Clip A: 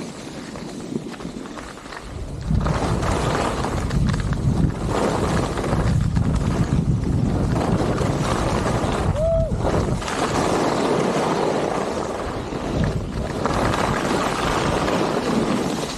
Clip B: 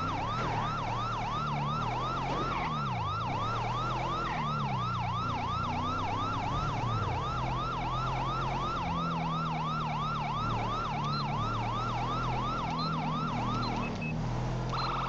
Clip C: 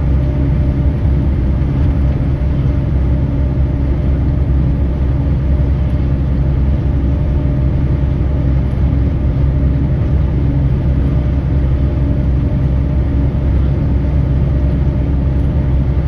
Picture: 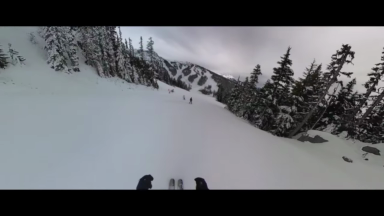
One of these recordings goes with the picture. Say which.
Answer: A